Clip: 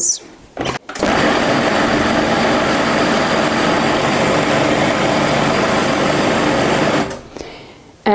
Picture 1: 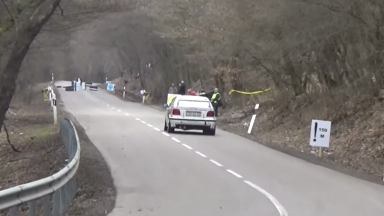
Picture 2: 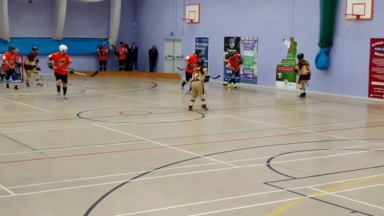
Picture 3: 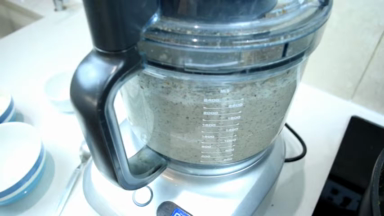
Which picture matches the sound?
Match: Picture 3